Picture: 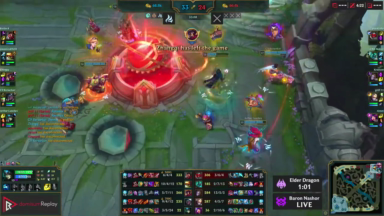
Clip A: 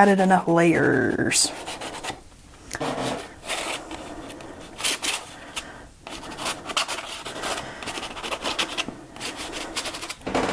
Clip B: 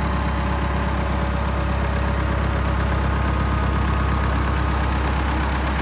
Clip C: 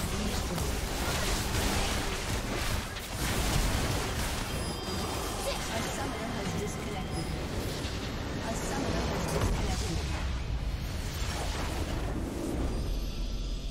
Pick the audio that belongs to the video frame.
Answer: C